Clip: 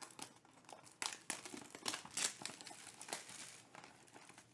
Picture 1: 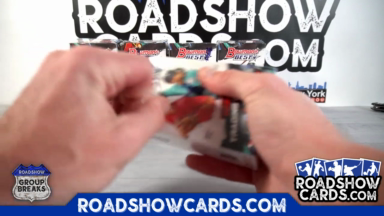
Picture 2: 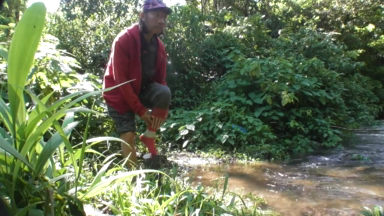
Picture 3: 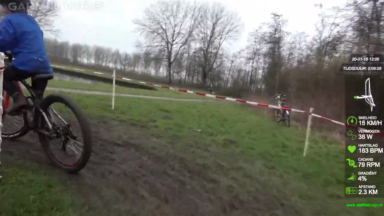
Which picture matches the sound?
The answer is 1